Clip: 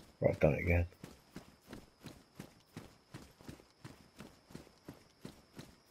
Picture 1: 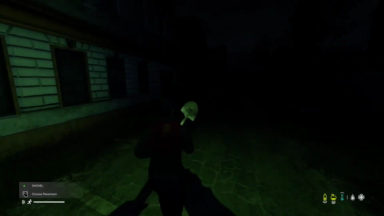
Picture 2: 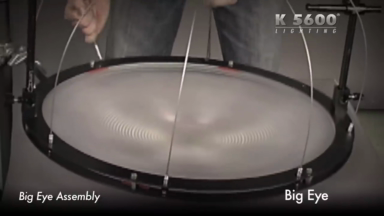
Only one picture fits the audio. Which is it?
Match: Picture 1